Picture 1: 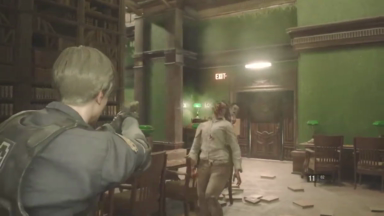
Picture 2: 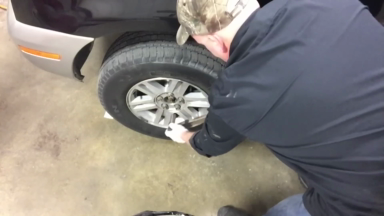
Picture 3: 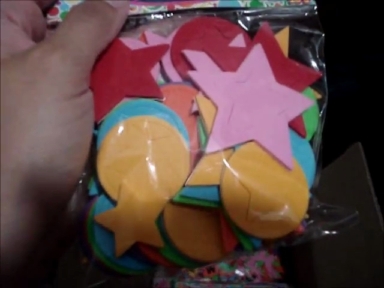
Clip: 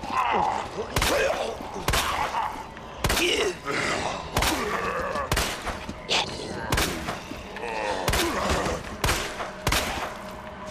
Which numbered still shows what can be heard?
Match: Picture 1